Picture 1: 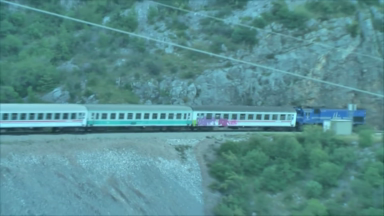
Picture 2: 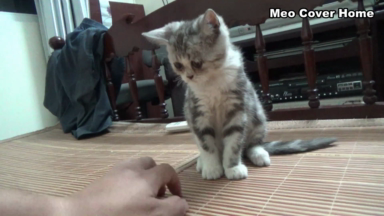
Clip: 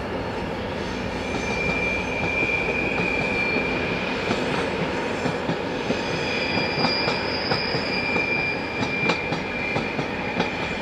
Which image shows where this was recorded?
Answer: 1